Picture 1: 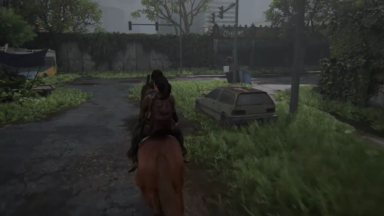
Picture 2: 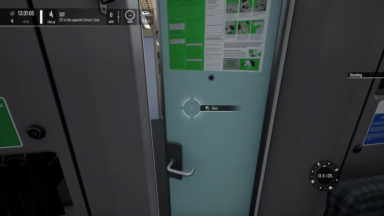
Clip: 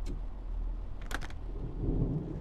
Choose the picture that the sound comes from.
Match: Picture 2